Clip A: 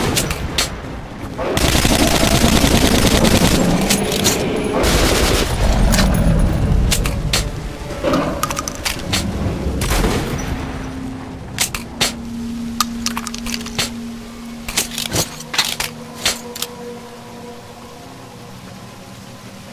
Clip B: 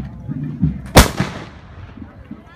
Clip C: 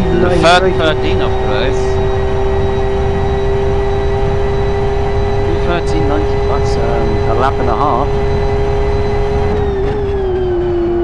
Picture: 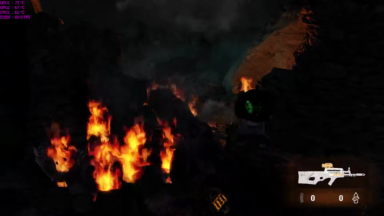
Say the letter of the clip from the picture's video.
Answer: A